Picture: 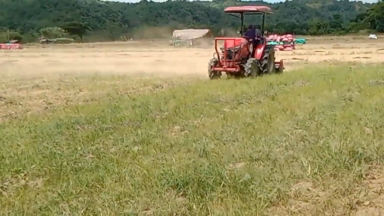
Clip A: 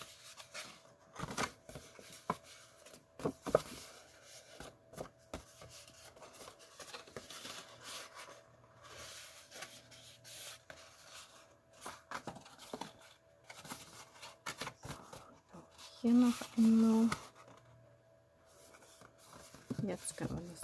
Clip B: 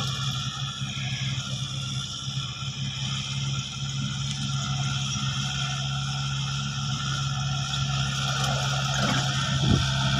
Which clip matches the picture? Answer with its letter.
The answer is B